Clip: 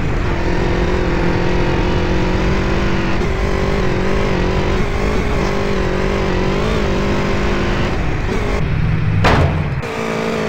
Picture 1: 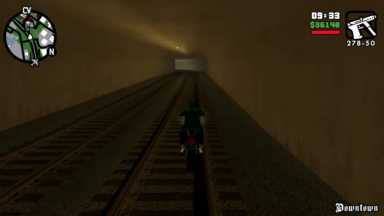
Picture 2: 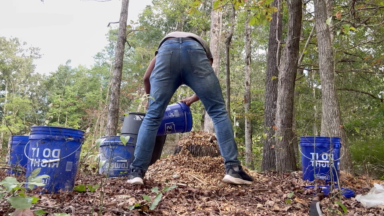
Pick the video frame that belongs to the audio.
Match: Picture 1